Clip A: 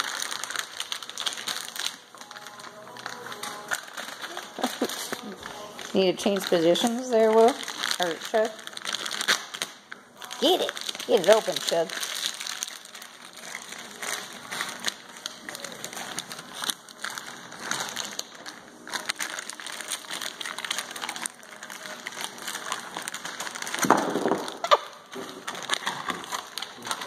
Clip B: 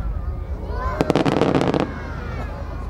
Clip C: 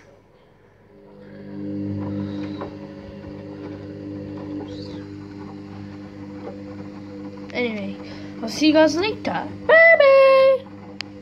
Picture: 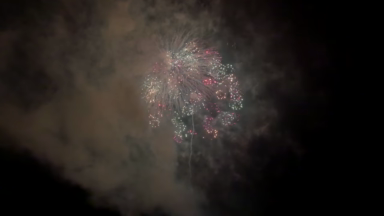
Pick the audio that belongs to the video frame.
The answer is B